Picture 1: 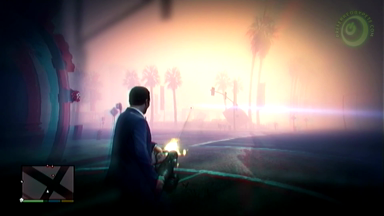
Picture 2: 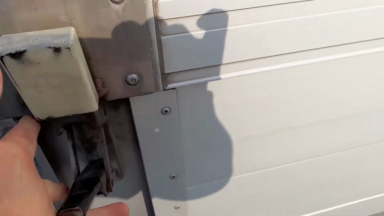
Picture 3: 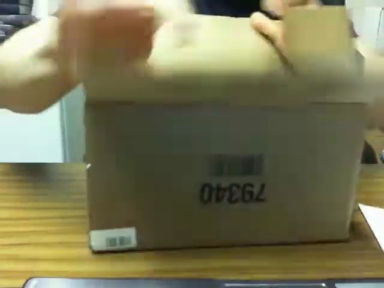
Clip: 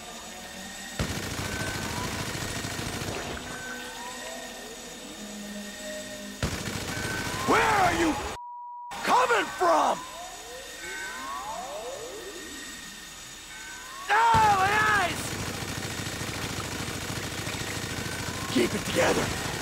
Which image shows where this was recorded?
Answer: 1